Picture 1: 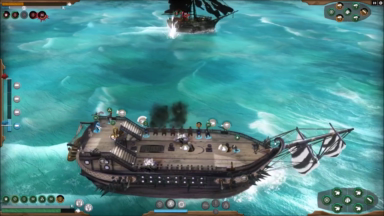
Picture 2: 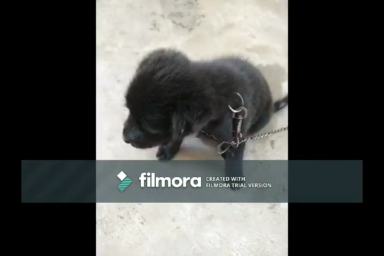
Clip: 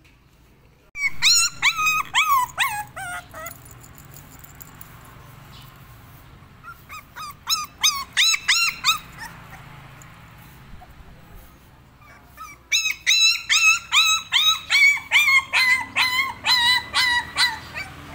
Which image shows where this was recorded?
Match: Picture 2